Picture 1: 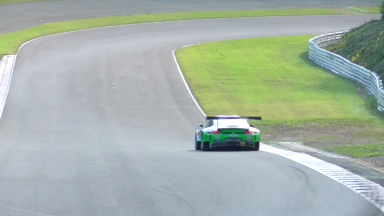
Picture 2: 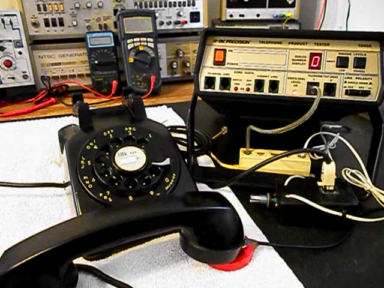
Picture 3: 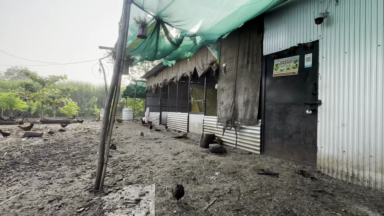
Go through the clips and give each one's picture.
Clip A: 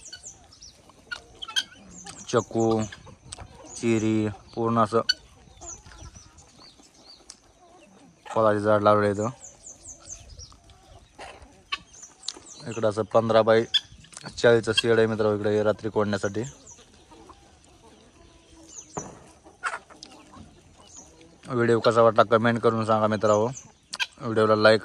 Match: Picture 3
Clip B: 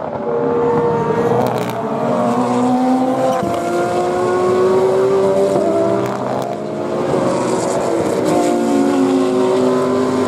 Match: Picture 1